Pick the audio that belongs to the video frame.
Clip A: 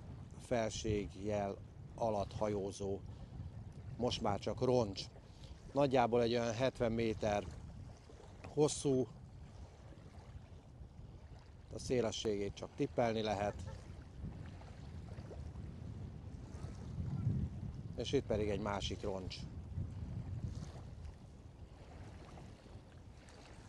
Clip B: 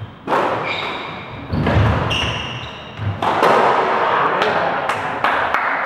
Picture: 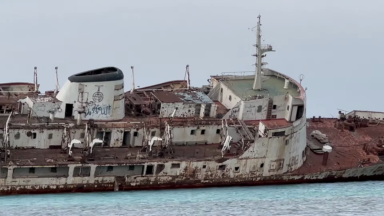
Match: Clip A